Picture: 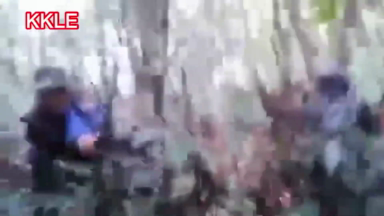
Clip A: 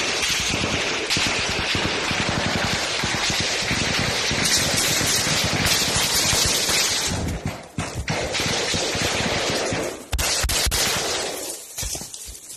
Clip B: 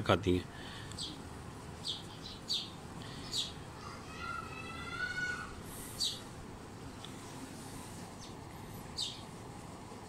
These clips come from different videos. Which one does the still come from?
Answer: A